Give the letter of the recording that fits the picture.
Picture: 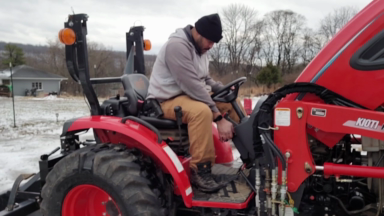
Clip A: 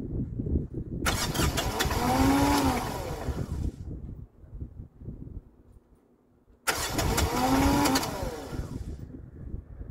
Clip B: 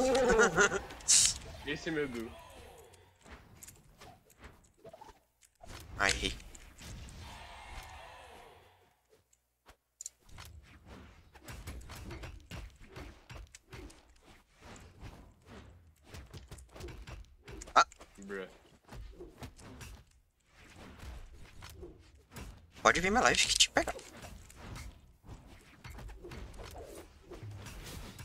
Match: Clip A